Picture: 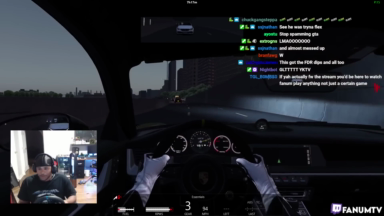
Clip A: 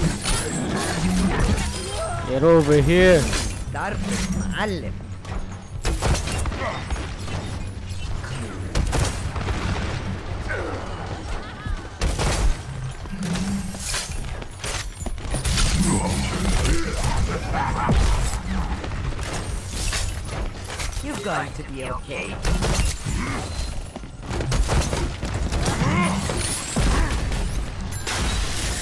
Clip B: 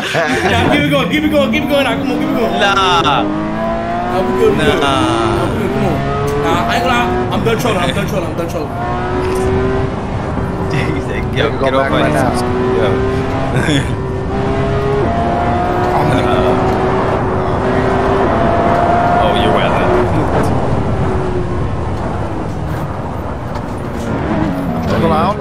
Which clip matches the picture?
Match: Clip B